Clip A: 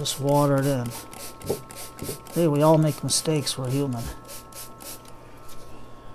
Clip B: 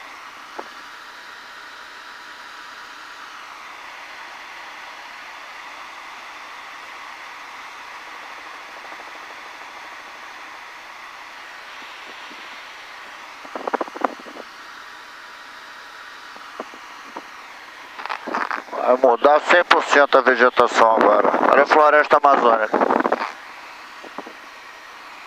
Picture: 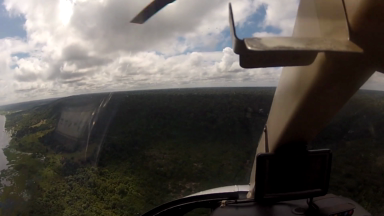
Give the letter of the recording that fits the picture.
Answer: B